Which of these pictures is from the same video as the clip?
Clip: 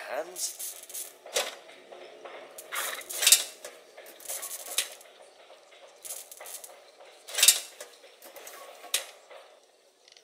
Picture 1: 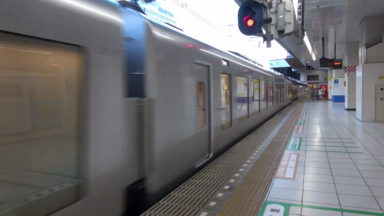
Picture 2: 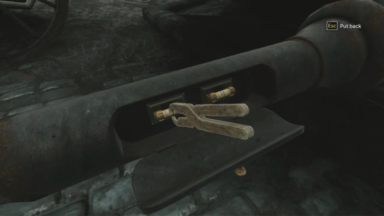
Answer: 2